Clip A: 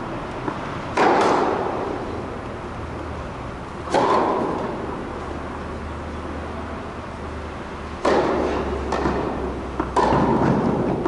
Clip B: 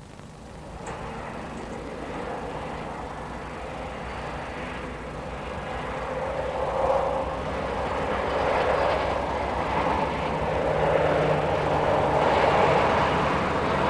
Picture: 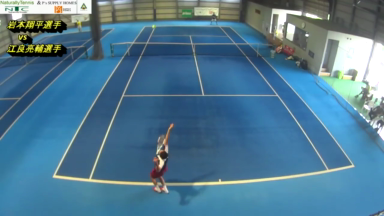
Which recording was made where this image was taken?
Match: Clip A